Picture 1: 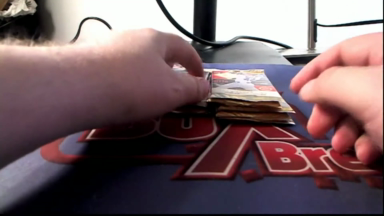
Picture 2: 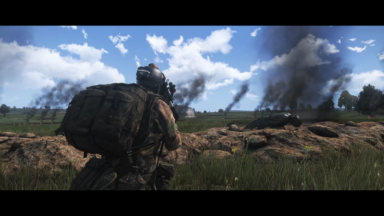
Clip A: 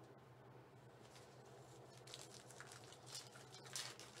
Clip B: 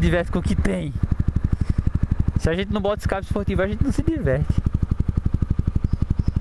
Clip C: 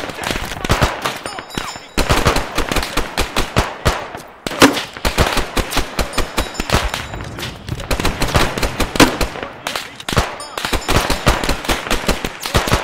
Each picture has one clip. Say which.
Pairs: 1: A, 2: C